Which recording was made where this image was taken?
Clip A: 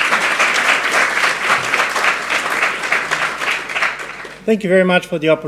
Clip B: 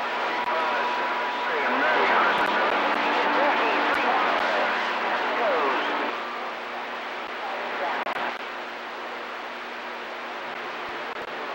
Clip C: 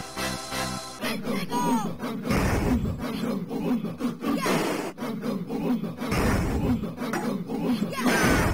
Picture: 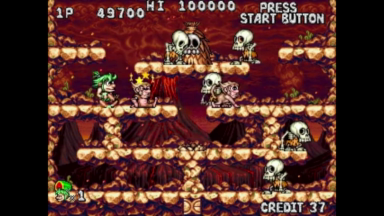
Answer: C